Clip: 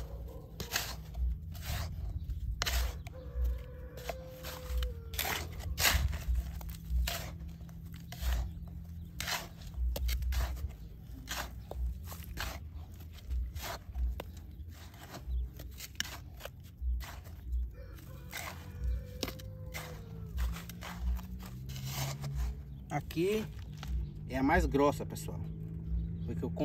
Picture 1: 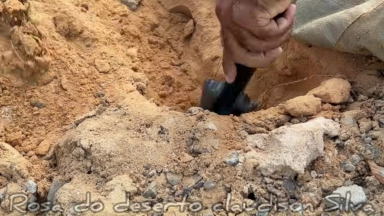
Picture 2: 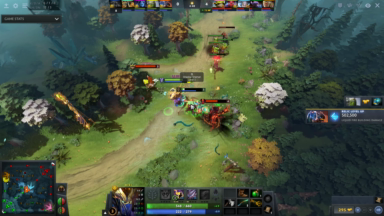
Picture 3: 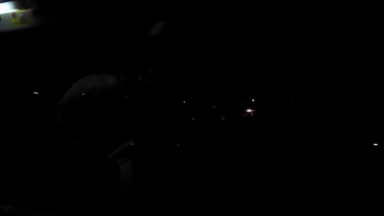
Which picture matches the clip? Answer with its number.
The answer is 1